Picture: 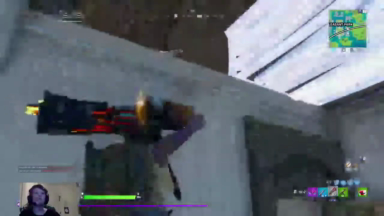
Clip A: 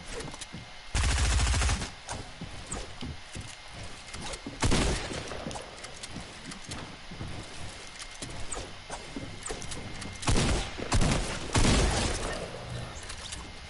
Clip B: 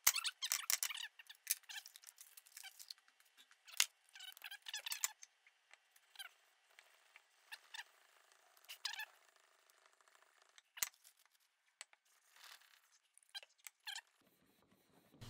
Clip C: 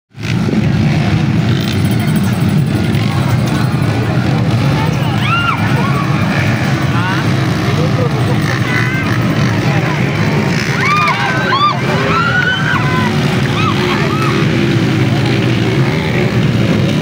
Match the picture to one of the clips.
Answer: A